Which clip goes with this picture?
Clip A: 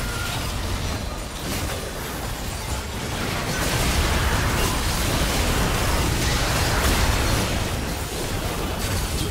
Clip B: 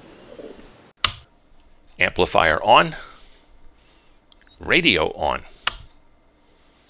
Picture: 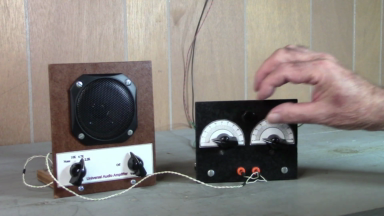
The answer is B